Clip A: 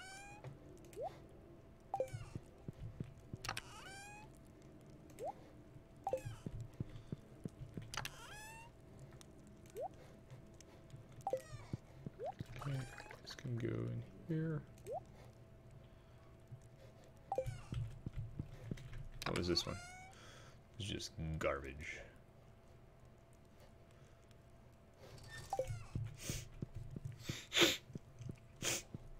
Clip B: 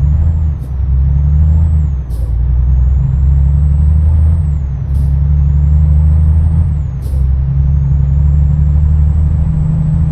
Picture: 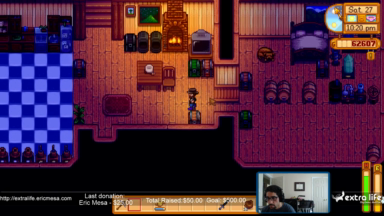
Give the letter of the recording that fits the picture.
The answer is A